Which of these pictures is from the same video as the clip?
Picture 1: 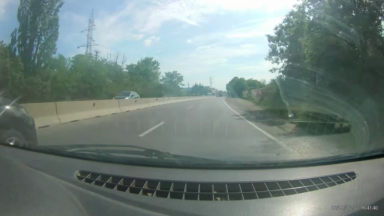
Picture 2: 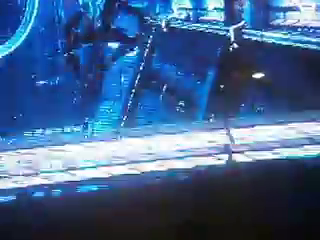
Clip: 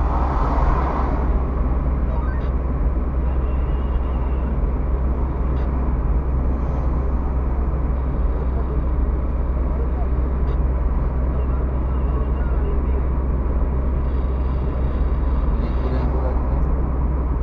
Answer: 1